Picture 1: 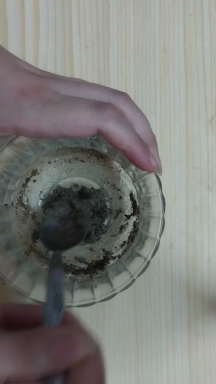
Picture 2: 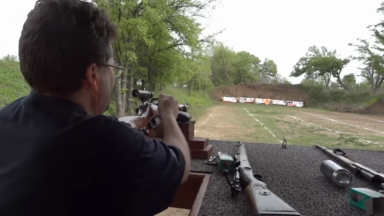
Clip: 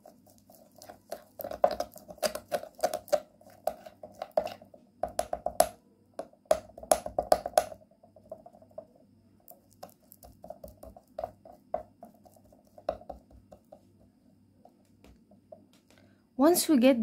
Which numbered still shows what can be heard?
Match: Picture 1